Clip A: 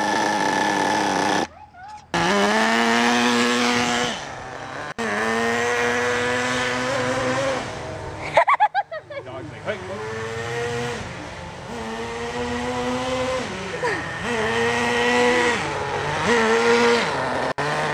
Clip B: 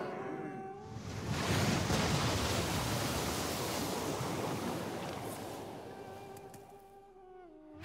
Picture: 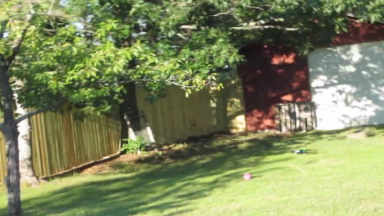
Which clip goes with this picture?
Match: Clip A